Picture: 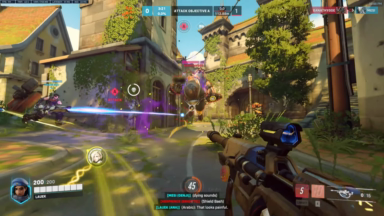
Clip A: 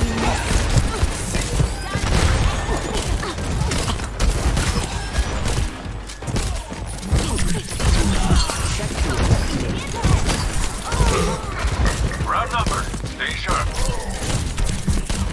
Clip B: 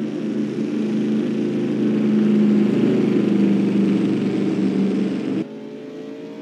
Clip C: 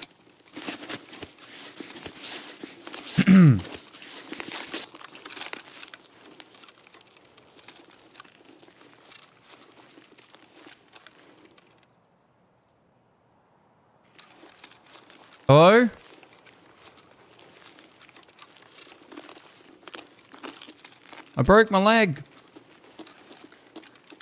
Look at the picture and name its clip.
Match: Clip A